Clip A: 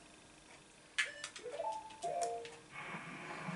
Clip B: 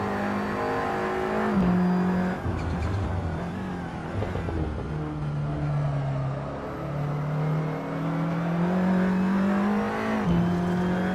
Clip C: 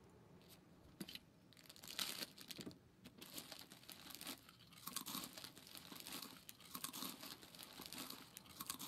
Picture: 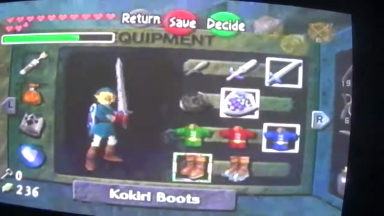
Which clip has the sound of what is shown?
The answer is A